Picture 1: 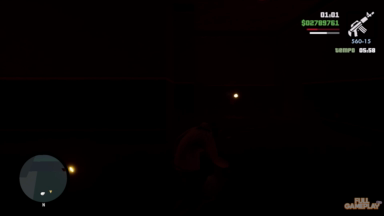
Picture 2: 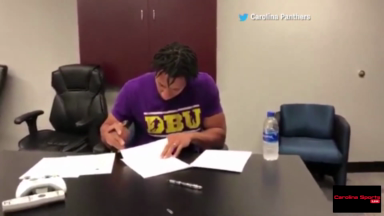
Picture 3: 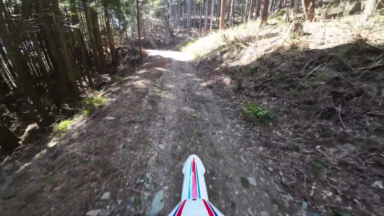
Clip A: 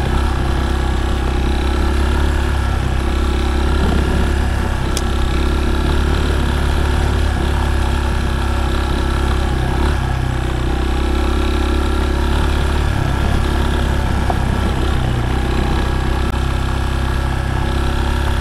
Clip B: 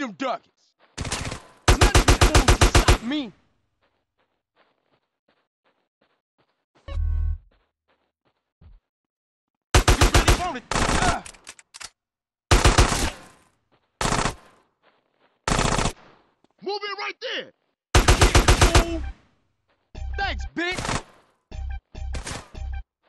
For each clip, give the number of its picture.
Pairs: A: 3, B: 1